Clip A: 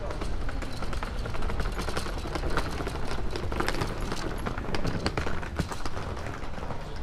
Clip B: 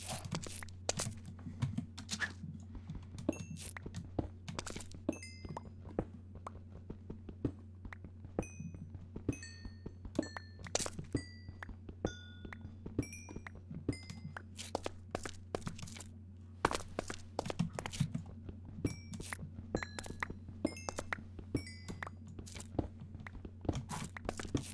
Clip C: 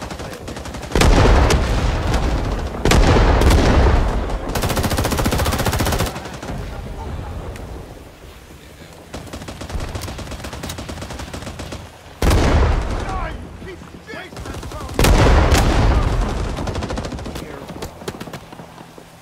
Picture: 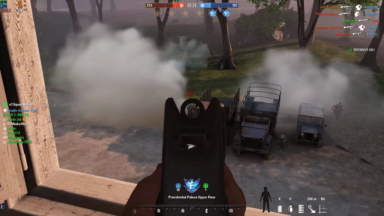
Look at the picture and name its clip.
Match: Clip C